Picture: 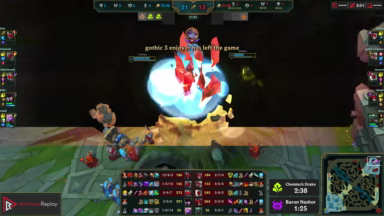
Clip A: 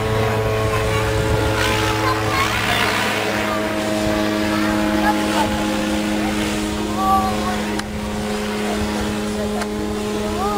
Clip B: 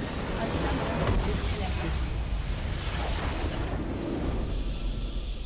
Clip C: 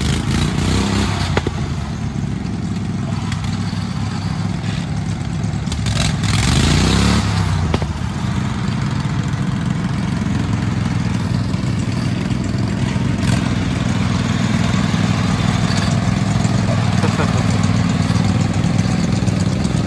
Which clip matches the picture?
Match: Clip B